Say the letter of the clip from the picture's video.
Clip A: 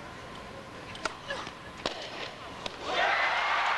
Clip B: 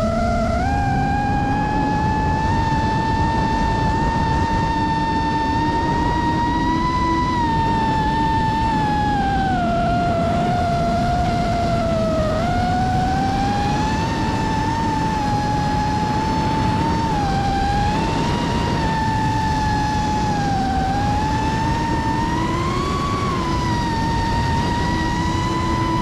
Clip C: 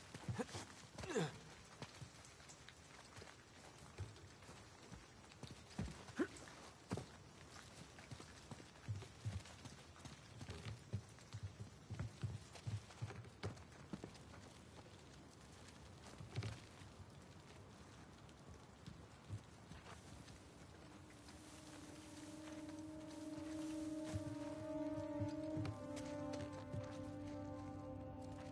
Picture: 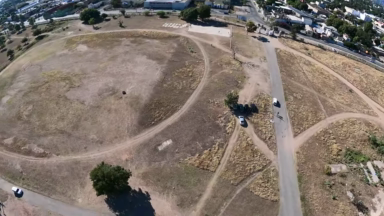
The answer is B